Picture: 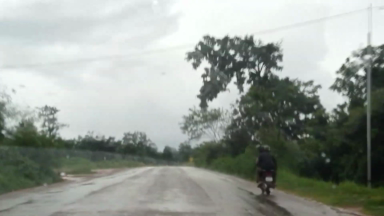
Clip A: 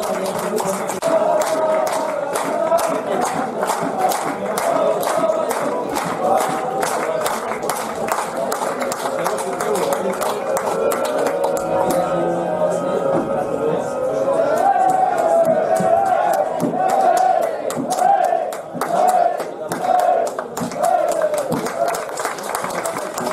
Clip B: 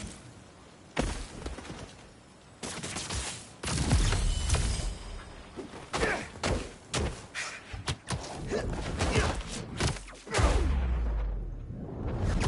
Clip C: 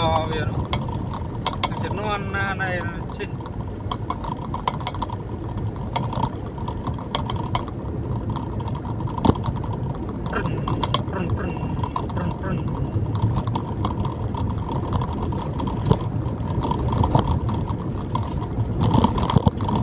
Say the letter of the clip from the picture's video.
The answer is C